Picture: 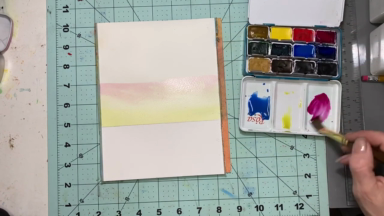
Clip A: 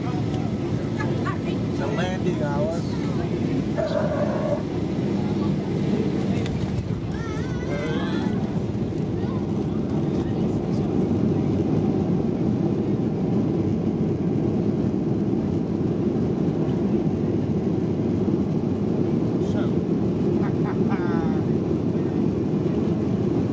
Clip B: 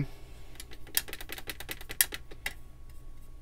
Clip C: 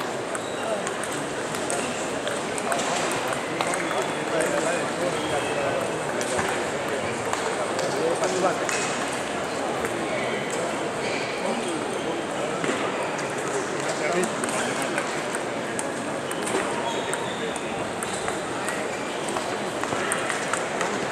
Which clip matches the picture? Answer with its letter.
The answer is B